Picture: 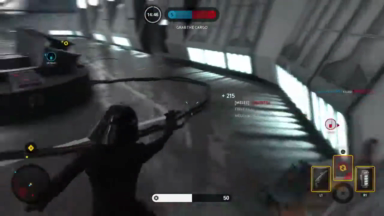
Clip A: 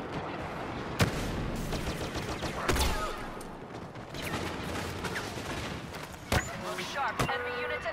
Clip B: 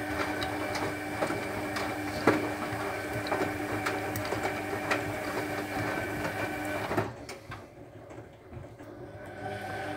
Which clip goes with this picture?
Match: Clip A